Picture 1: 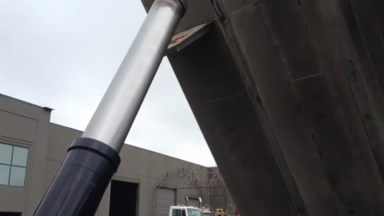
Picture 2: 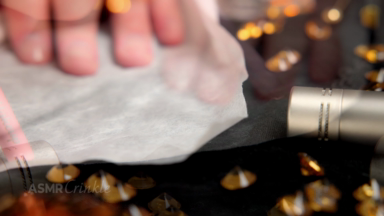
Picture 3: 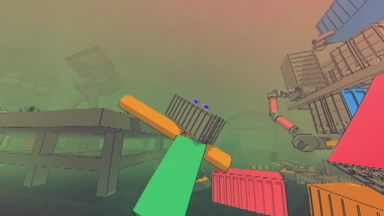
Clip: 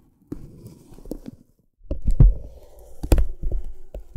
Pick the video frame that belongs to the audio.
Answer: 2